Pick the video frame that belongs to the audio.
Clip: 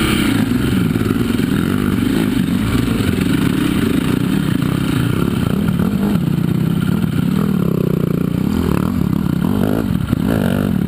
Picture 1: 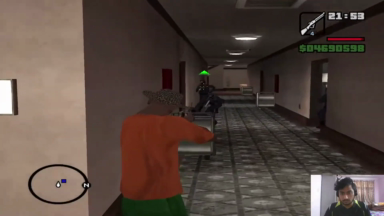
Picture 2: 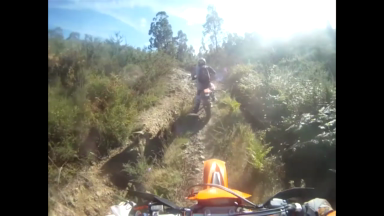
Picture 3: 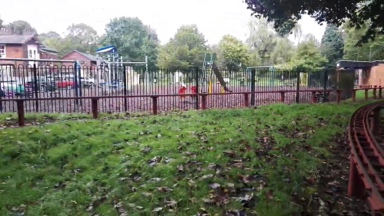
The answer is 2